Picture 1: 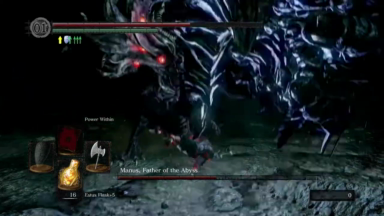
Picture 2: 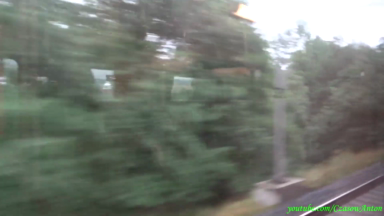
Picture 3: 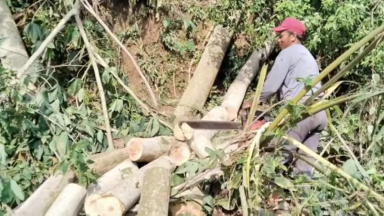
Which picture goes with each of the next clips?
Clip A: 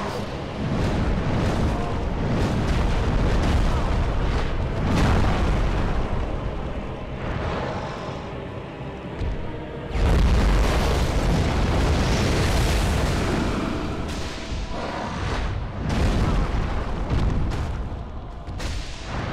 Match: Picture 1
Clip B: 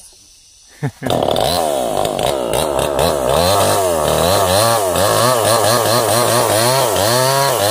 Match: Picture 3